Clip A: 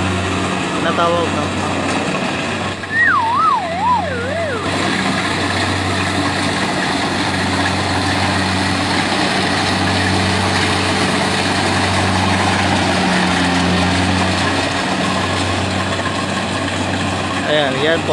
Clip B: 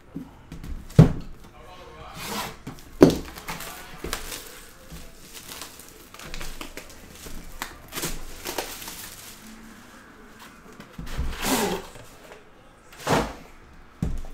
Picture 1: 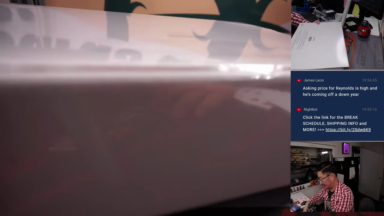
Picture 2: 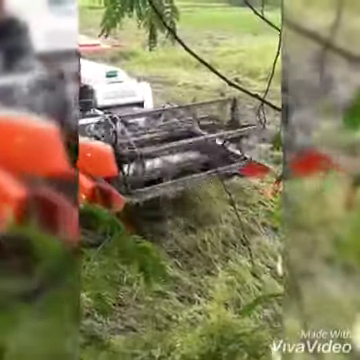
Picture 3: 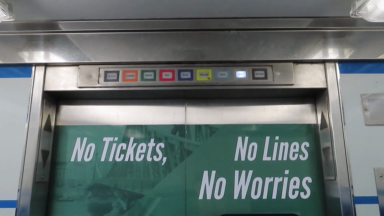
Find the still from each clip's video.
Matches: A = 2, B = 1